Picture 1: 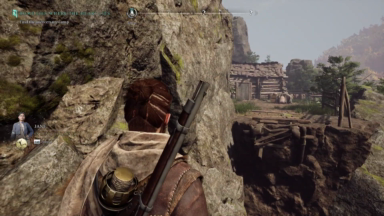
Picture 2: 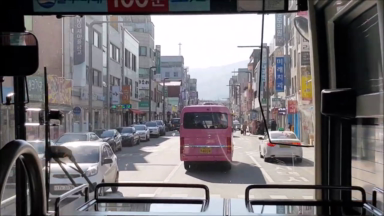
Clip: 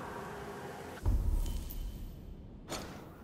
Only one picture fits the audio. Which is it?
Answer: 1